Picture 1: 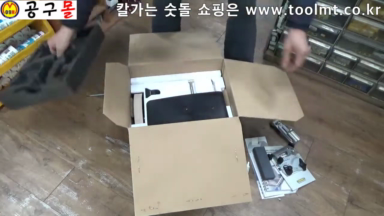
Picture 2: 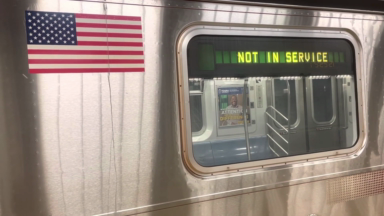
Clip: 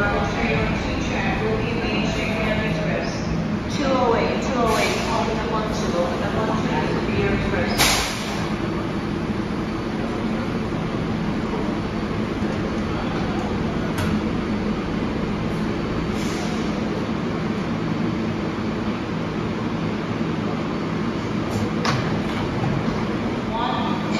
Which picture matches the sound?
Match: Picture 2